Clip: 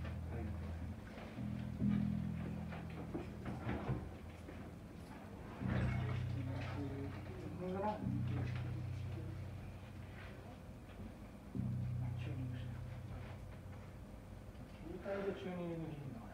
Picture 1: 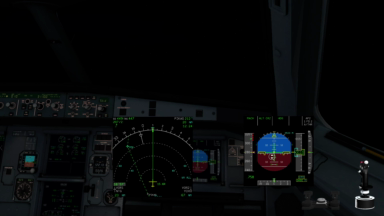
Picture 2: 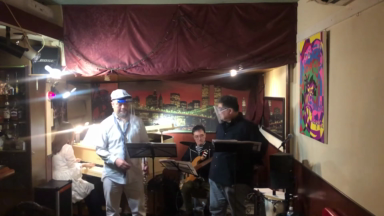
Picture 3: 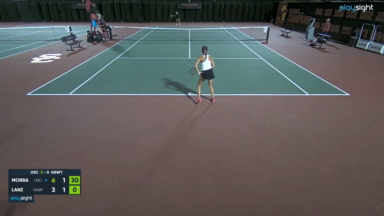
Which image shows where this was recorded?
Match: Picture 2